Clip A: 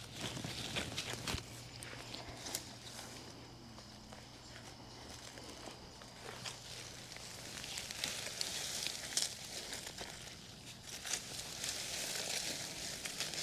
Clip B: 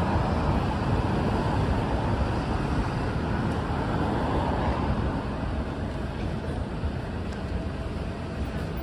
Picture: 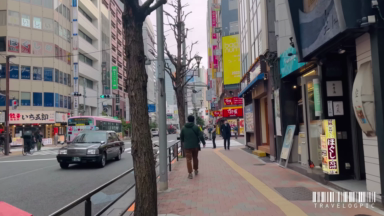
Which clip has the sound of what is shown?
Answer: B